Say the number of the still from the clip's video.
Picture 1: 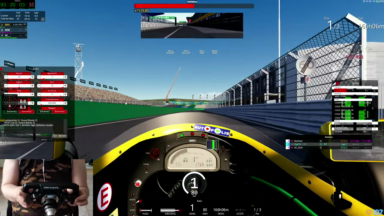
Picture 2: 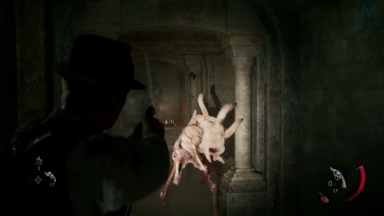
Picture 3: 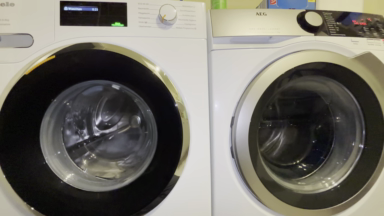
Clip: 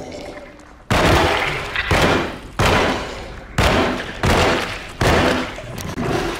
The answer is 2